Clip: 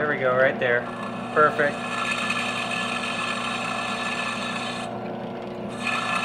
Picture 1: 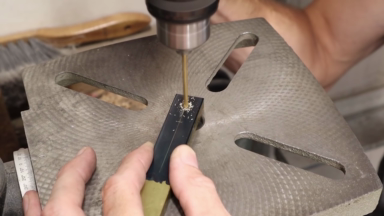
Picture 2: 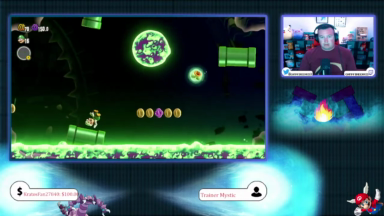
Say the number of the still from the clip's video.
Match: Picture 1